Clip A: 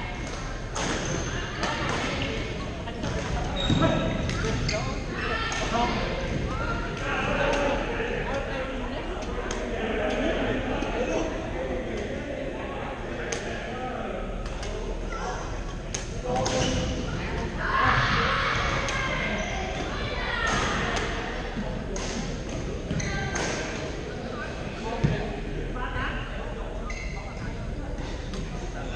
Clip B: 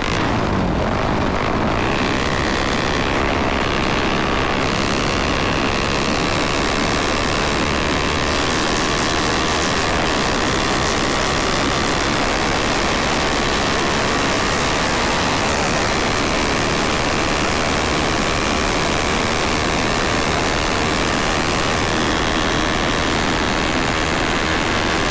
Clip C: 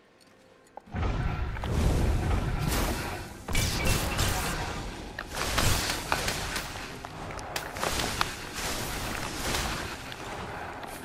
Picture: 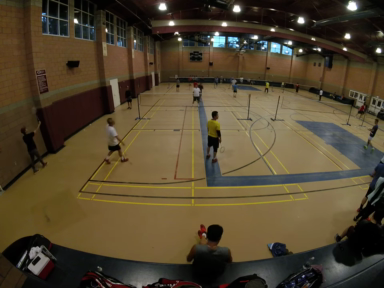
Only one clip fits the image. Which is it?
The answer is A